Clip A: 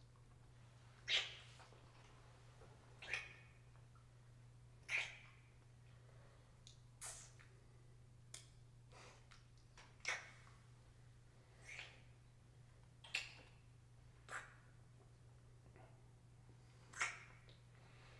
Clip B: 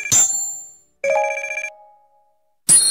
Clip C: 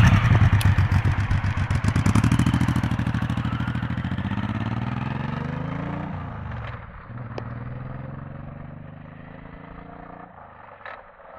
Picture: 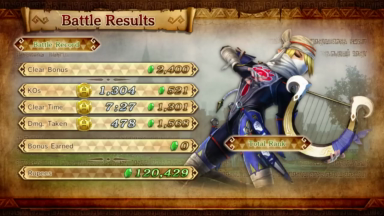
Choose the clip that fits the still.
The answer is B